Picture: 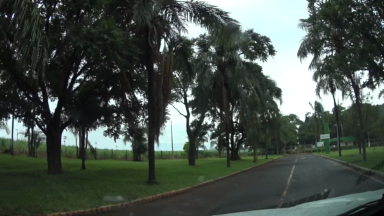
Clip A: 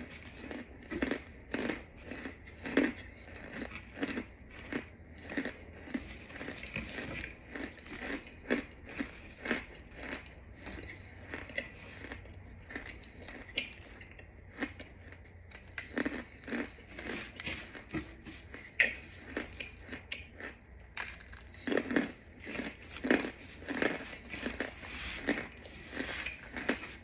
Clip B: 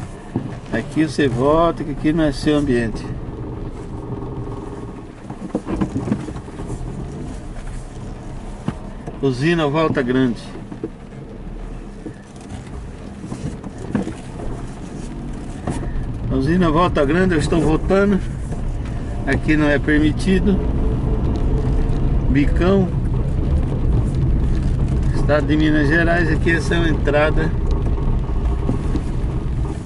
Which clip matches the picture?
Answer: B